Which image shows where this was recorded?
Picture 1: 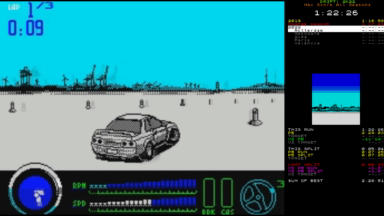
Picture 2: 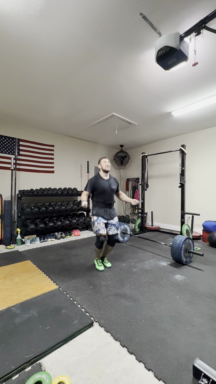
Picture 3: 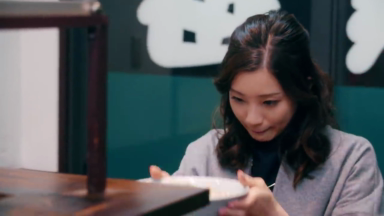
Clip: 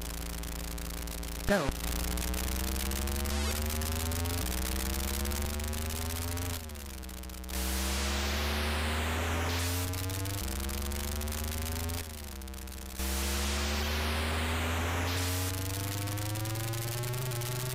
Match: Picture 1